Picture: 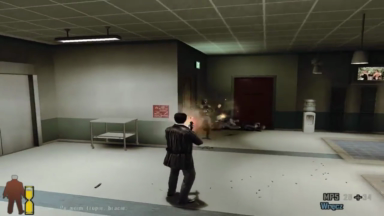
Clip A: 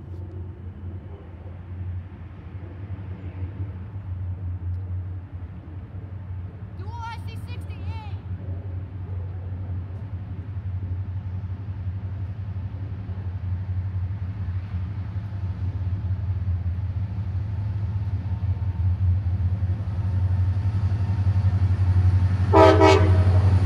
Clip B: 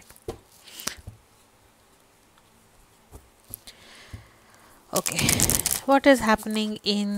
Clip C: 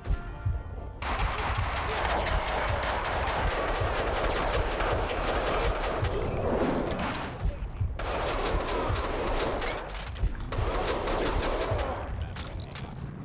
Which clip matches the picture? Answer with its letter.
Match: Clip C